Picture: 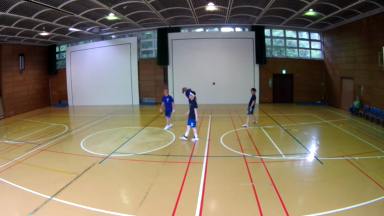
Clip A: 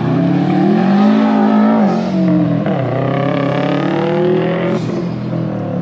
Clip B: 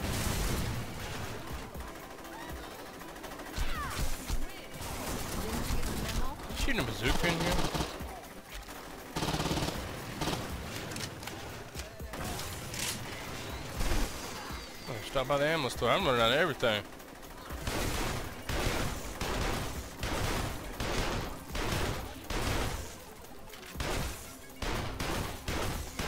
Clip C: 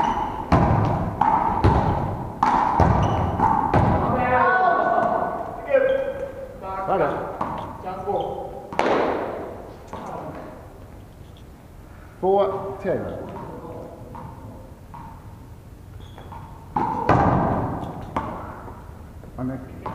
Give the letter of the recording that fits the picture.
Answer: C